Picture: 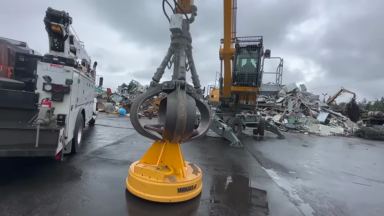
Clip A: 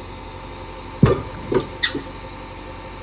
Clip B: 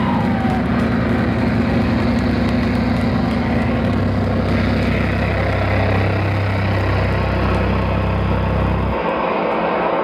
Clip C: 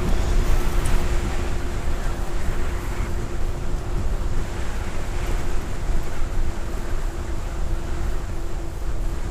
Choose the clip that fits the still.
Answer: A